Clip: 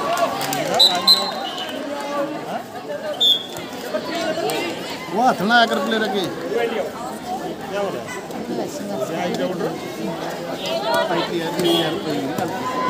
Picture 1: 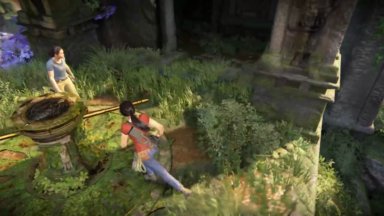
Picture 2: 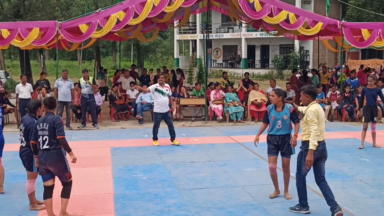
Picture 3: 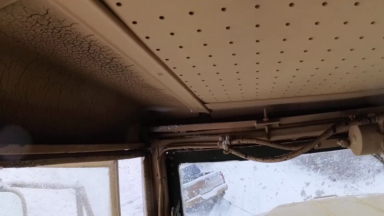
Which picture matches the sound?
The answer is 2